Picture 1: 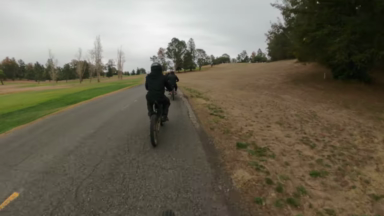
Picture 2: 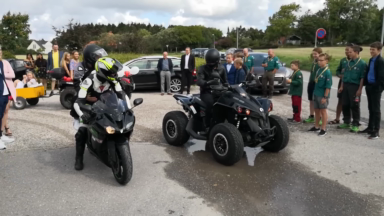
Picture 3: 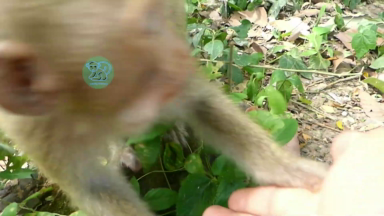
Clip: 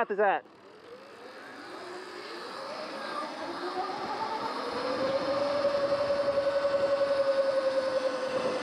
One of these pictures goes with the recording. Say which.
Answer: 1